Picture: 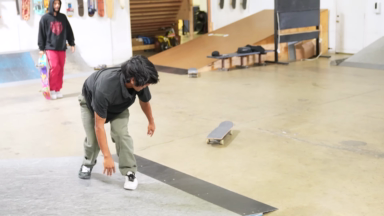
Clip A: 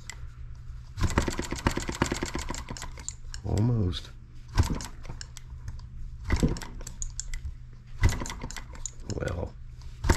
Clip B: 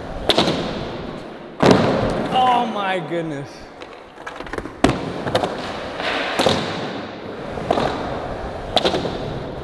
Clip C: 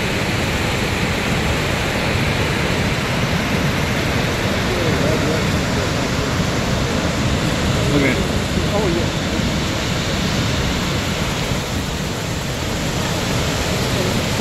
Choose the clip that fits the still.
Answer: B